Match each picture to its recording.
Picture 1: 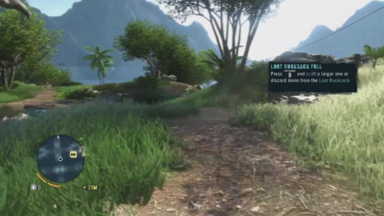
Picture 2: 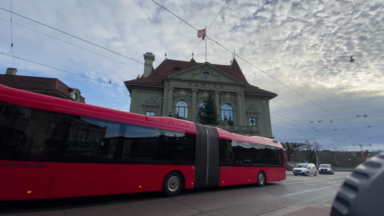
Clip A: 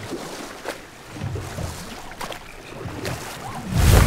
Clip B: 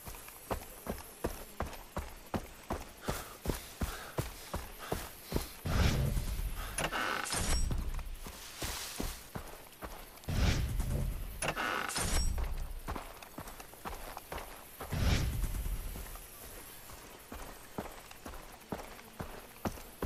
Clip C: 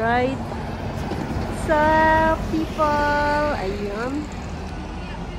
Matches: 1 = B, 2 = C